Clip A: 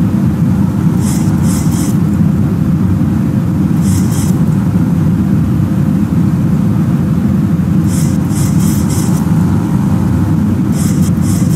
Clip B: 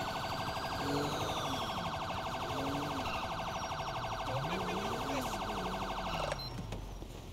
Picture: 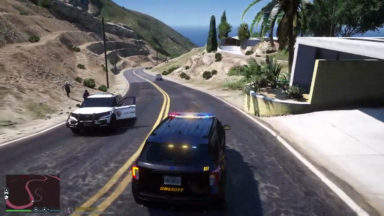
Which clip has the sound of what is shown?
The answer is B